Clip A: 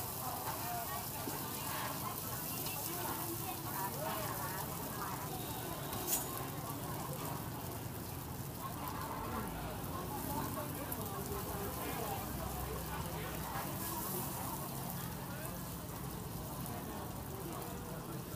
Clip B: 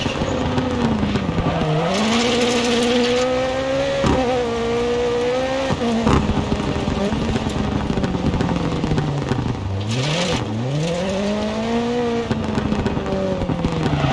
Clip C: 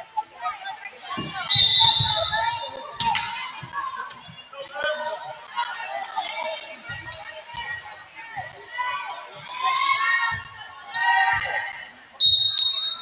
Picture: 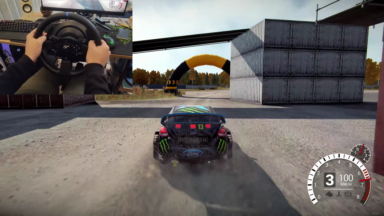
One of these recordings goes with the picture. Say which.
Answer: B